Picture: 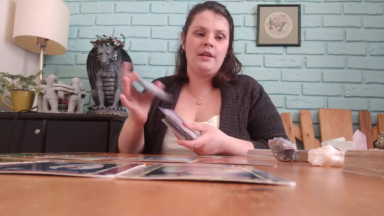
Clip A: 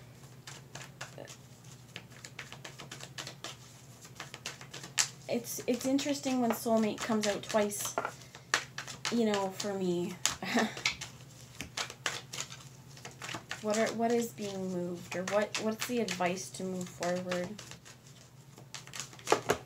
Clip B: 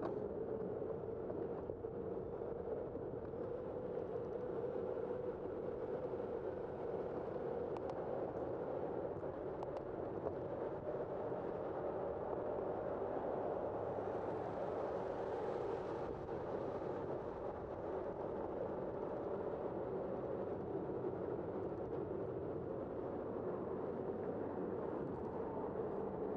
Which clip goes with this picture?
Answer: A